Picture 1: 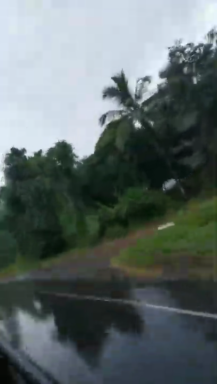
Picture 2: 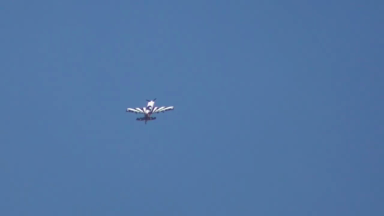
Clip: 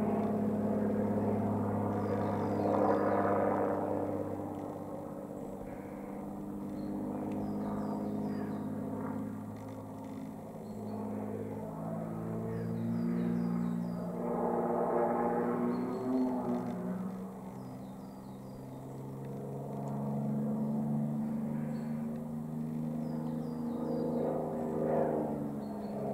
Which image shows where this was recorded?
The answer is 2